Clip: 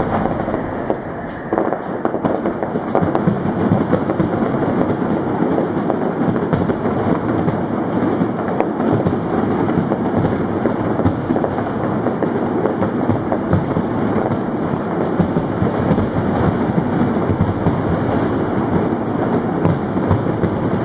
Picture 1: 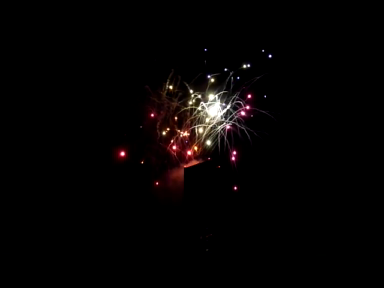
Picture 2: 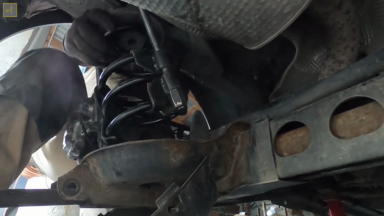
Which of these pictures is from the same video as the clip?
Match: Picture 1